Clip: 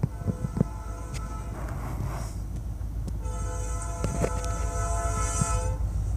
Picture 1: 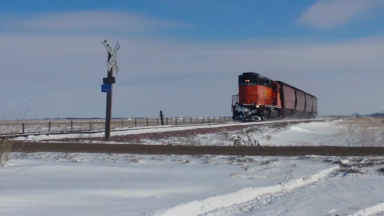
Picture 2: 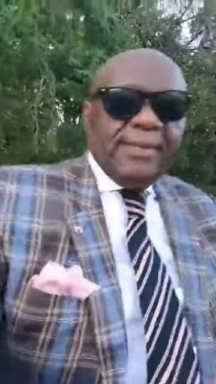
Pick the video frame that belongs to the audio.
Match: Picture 1